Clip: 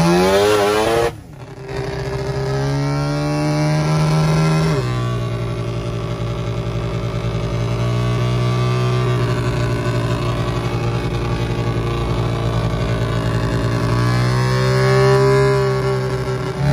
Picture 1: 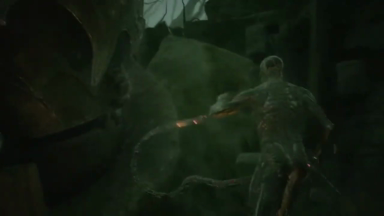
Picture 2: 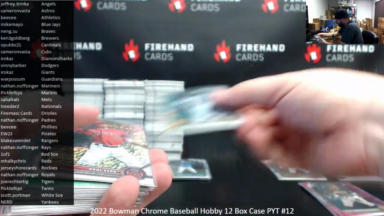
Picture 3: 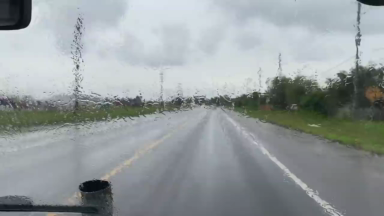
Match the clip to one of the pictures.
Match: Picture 3